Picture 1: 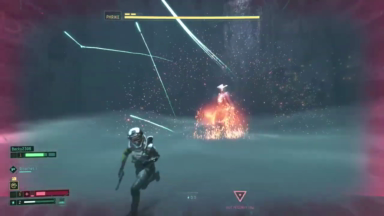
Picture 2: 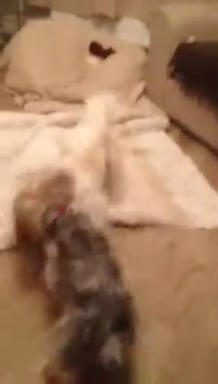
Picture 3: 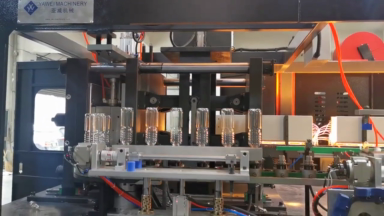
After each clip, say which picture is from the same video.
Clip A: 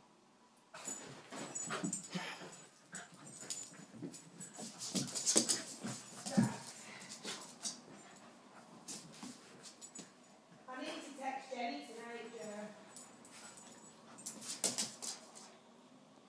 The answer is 2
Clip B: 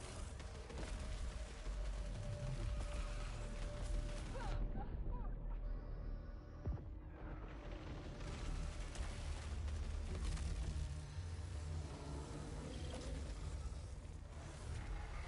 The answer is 1